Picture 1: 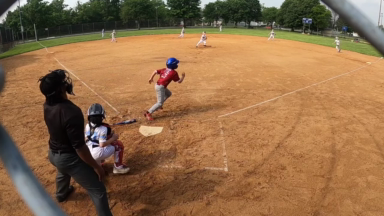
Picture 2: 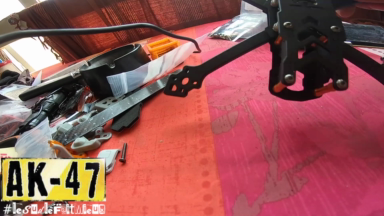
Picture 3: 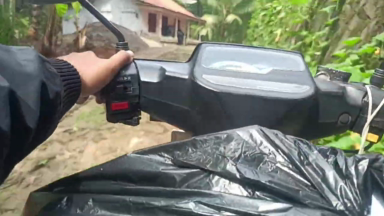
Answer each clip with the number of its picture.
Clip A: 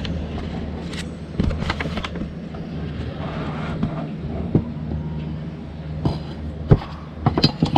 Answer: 2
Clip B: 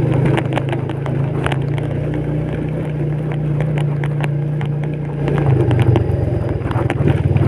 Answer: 3